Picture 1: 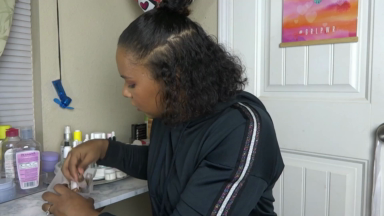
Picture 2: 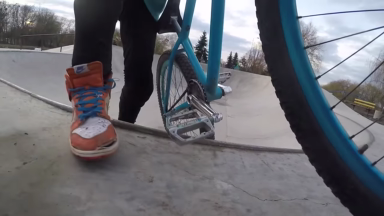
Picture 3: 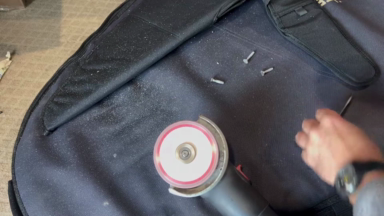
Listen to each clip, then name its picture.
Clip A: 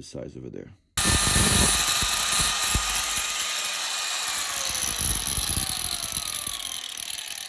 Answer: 3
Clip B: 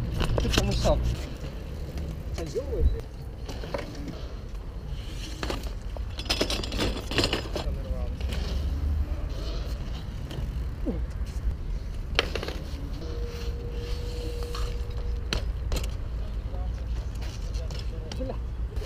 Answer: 2